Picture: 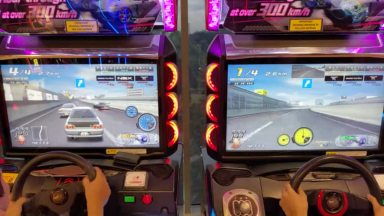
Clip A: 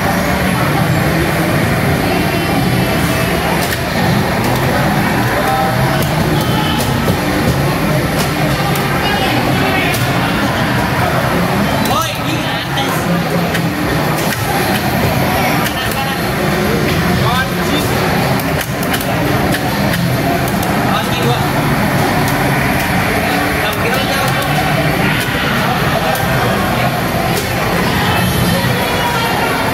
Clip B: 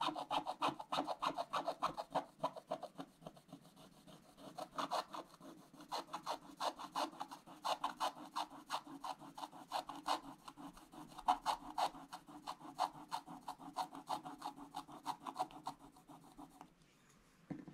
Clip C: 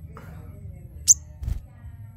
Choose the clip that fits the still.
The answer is A